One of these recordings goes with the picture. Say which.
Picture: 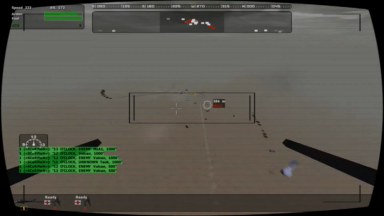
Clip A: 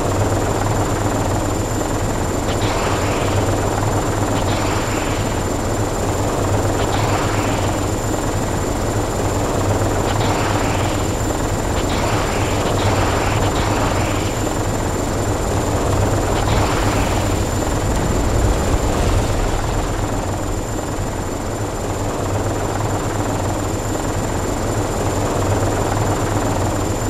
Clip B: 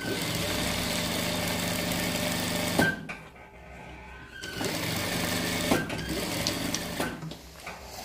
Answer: A